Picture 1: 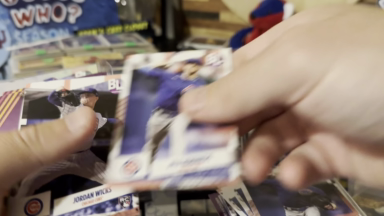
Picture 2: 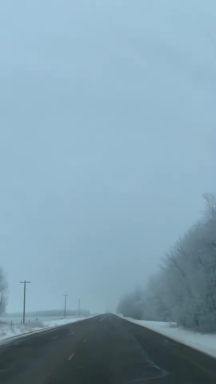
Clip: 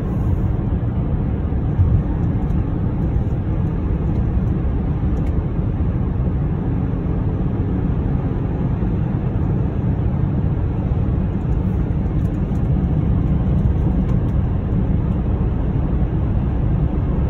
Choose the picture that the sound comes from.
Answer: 2